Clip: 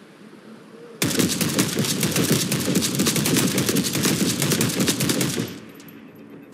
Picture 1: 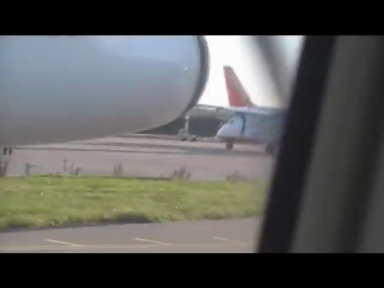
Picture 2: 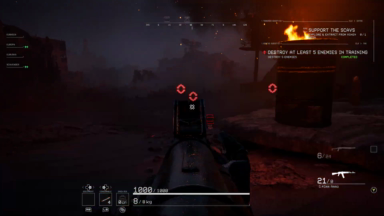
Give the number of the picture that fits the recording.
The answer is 2